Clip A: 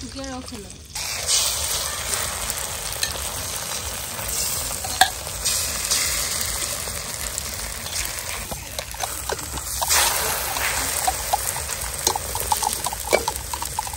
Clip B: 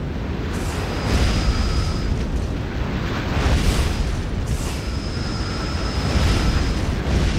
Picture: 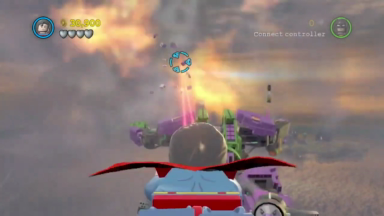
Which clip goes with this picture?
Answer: B